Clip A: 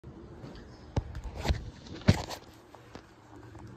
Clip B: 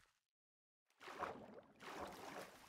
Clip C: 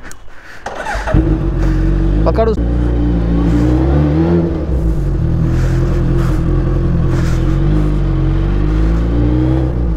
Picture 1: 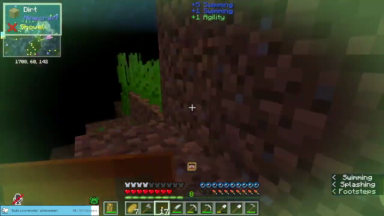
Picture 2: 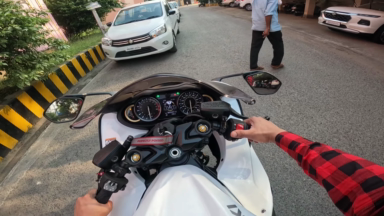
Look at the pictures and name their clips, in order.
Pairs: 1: B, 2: C